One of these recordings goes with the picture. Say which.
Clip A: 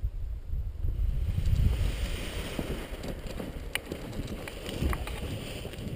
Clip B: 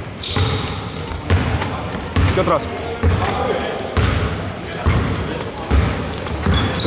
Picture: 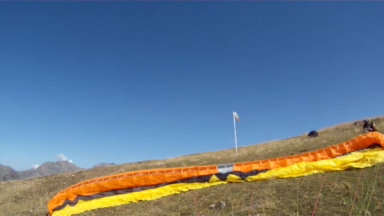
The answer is A